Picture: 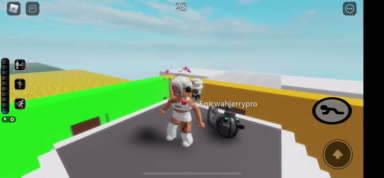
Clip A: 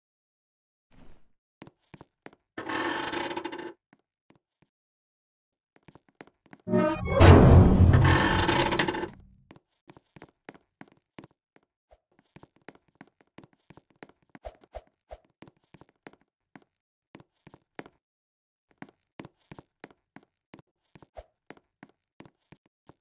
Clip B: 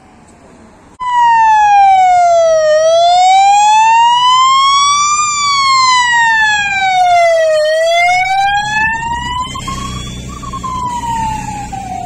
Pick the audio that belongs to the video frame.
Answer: A